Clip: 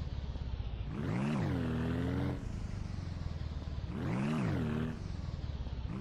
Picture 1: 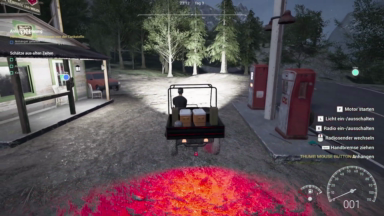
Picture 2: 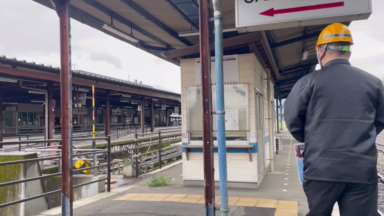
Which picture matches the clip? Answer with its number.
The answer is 1